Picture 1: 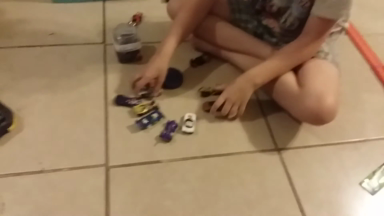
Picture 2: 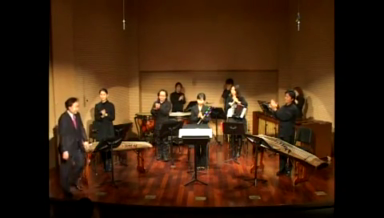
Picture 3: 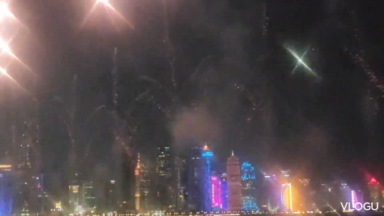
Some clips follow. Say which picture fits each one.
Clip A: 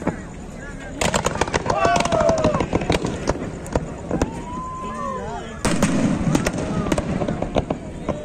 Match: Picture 3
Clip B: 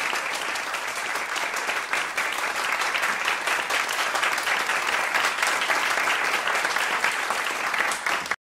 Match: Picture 2